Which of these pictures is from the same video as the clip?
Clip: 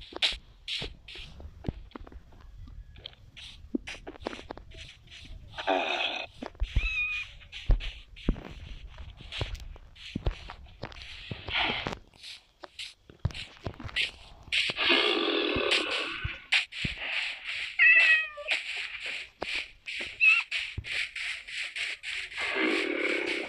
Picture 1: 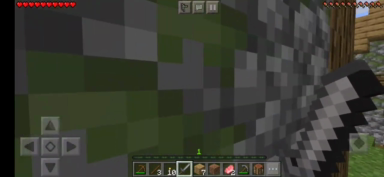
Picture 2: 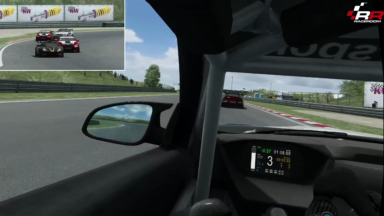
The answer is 1